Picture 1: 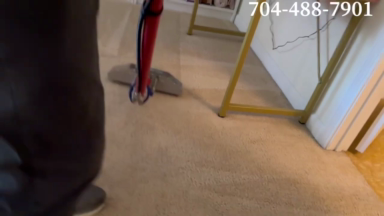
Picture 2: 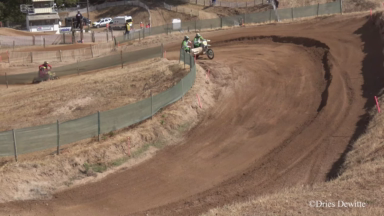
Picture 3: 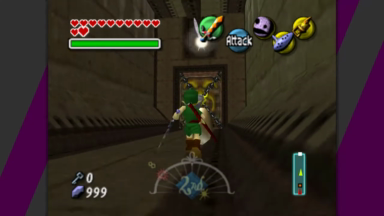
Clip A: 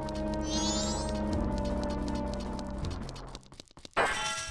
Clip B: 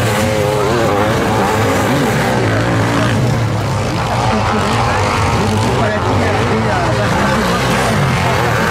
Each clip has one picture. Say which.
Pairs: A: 3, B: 2